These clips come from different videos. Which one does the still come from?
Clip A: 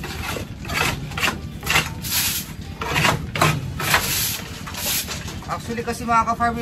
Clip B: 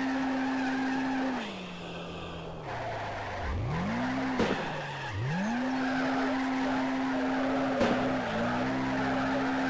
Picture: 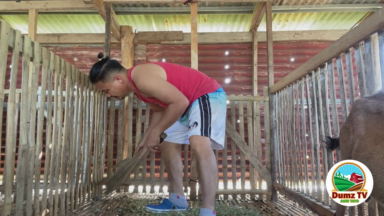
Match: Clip A